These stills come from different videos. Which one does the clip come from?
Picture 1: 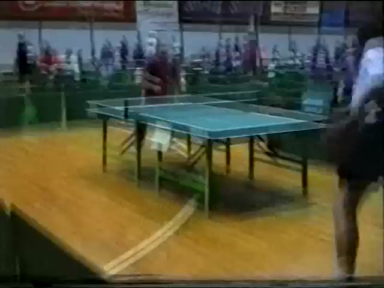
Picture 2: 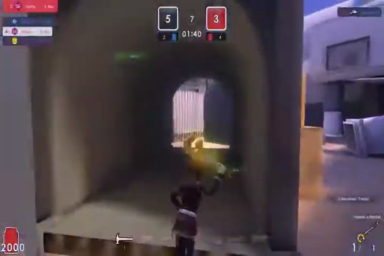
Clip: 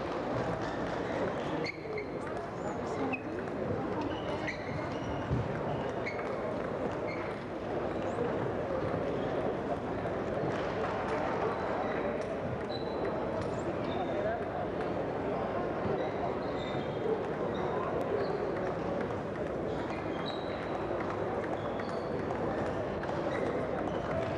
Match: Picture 1